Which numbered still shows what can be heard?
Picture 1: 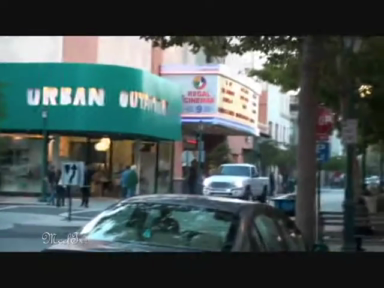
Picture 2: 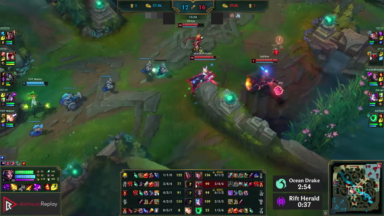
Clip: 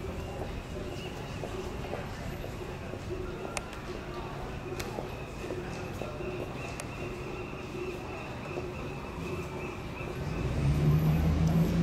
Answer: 1